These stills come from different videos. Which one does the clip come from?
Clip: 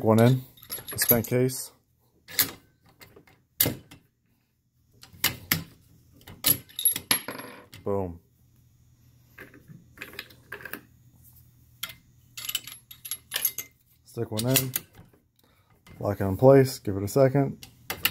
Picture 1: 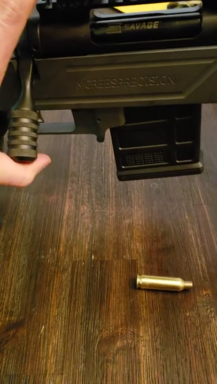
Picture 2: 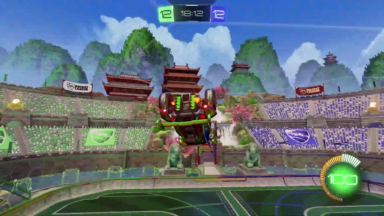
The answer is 1